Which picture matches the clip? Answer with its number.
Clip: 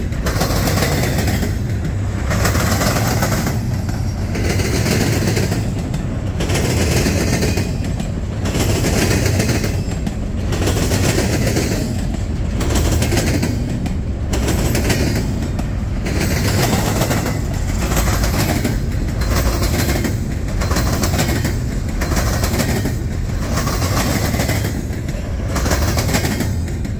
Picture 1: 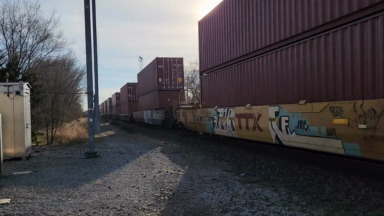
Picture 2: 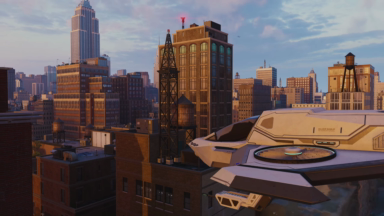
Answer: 1